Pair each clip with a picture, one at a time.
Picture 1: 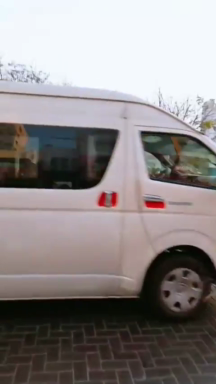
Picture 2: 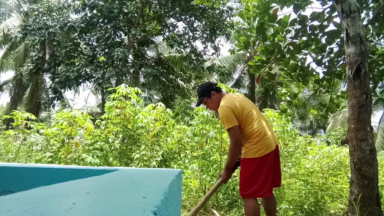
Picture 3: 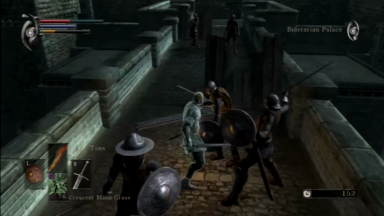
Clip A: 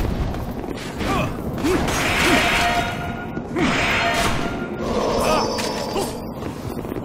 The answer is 3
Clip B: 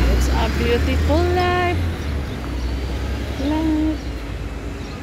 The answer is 1